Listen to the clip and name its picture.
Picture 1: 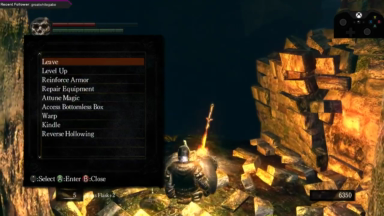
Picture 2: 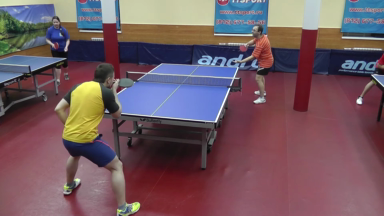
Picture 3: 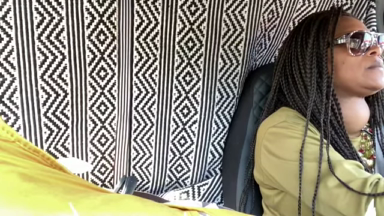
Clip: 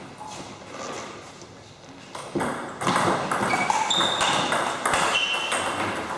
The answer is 2